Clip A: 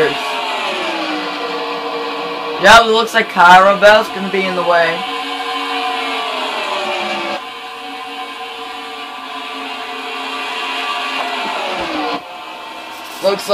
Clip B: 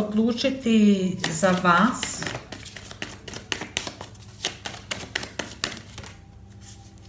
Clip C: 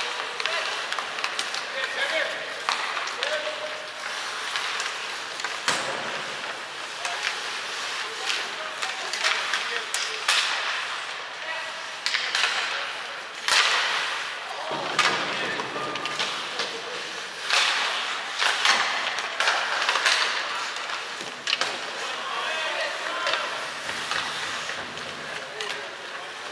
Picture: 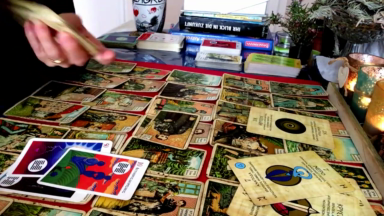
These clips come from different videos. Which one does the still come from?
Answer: B